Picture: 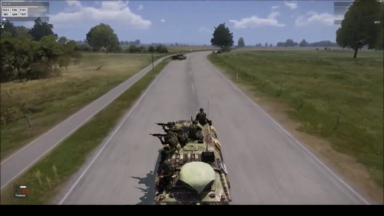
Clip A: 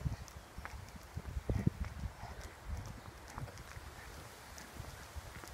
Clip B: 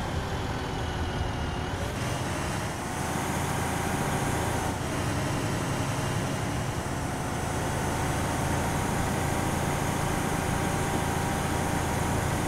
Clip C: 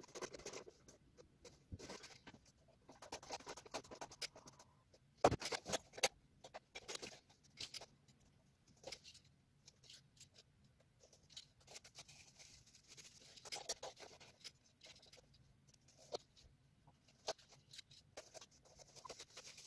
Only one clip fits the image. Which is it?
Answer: B